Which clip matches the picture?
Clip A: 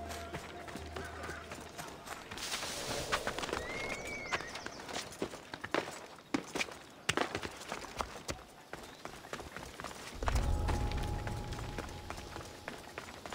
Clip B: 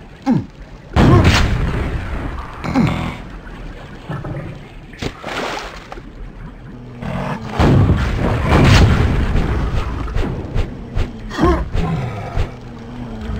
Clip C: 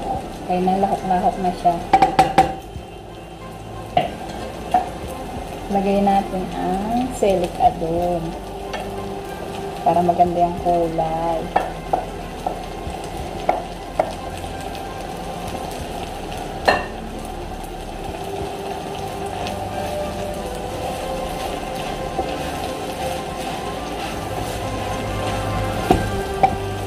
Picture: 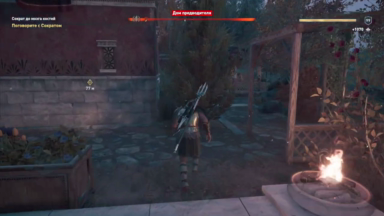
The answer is A